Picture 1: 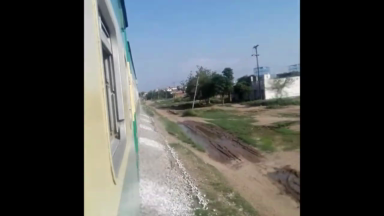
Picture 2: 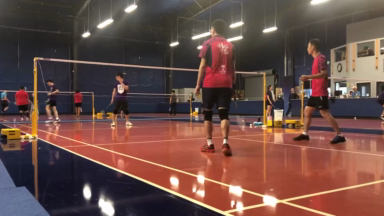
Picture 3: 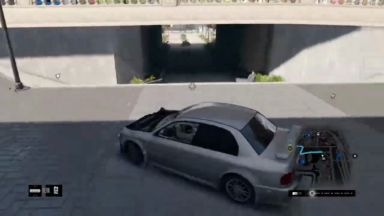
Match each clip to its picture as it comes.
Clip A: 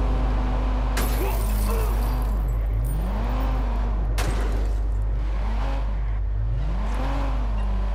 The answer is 3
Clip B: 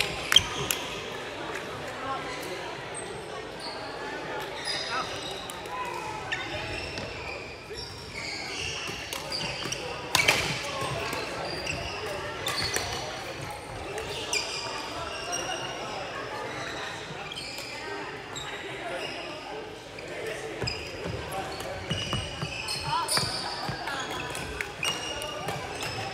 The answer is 2